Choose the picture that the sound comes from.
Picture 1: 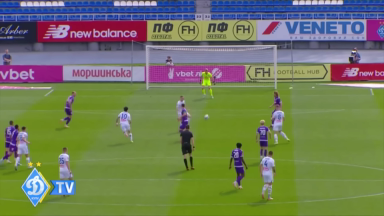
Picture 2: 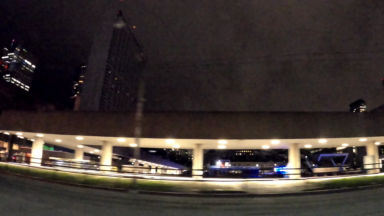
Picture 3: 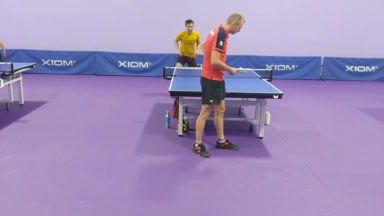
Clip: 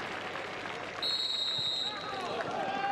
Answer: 1